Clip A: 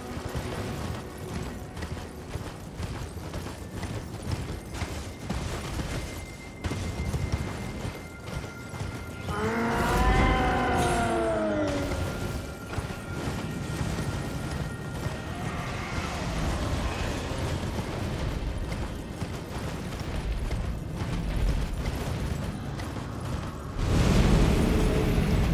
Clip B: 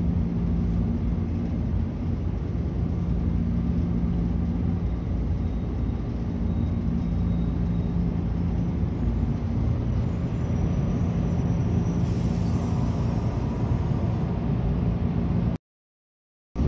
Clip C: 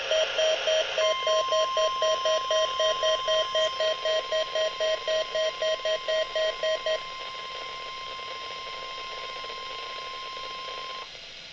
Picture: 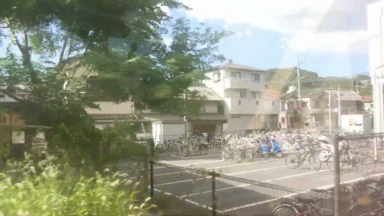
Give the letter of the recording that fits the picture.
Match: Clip B